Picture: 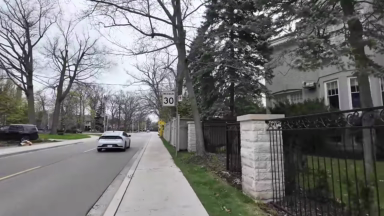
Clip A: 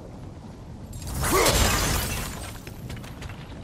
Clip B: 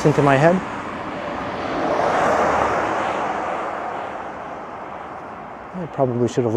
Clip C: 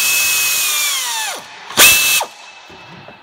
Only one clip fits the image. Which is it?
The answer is B